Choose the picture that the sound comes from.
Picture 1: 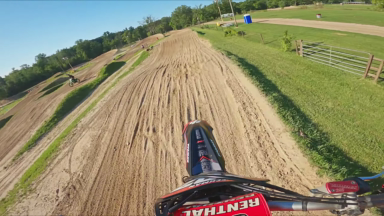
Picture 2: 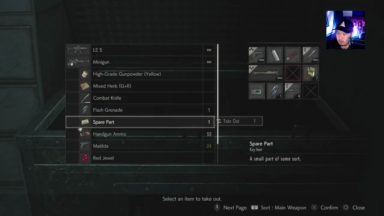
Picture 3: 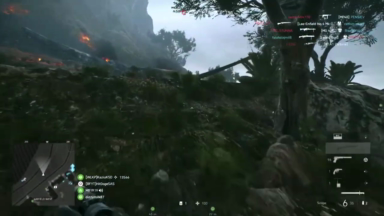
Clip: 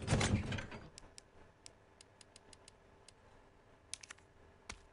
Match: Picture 2